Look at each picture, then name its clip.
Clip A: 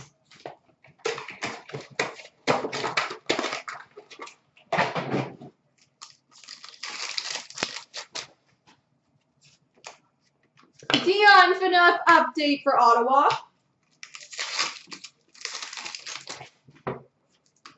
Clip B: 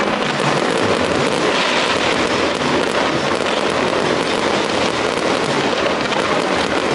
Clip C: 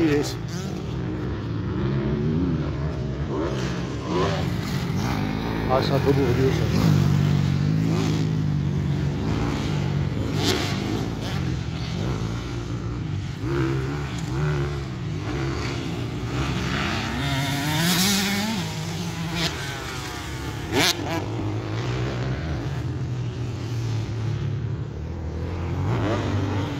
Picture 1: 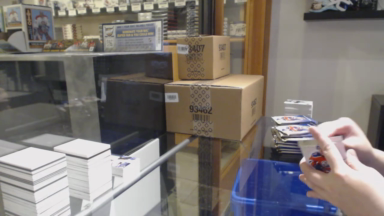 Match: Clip A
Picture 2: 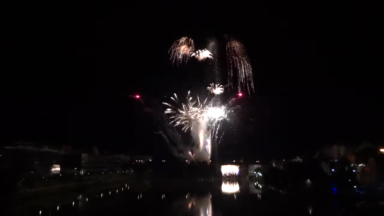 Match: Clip B